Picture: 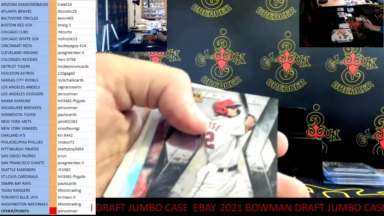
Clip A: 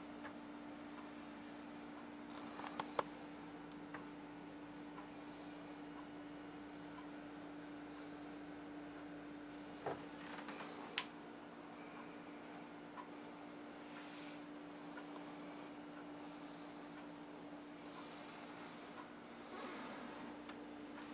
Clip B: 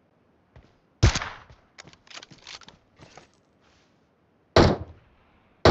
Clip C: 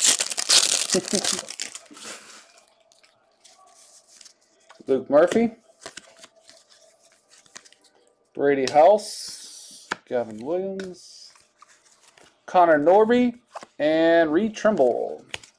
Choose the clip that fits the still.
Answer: C